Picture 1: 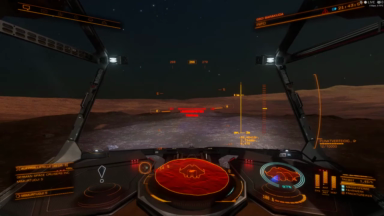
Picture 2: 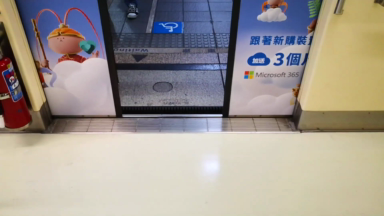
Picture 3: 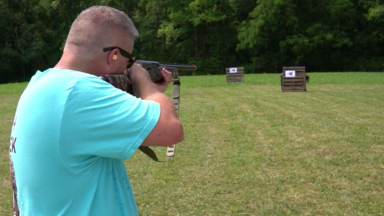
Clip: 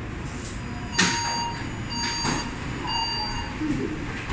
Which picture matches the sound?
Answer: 2